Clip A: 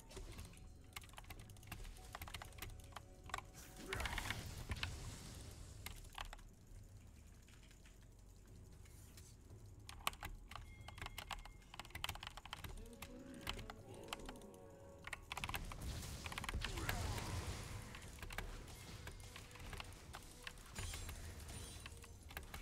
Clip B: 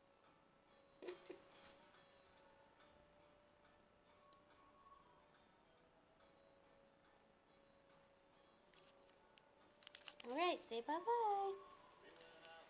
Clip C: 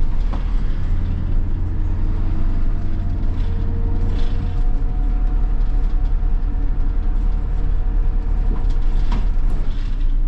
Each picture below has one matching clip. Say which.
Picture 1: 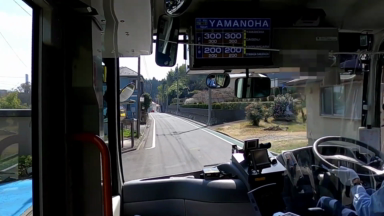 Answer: C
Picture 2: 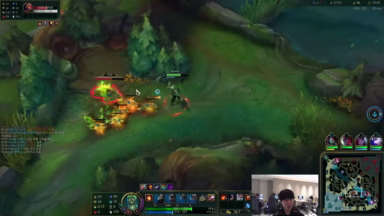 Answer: A